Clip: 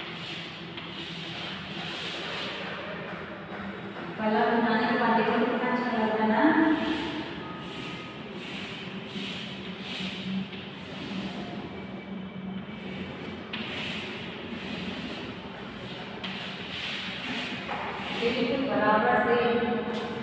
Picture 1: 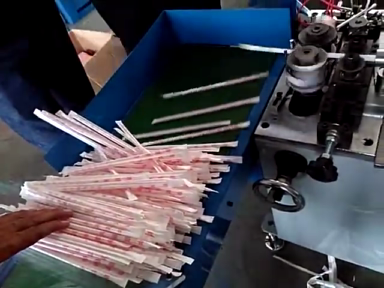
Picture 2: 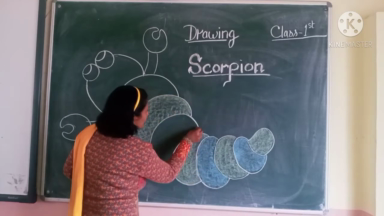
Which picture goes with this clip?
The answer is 2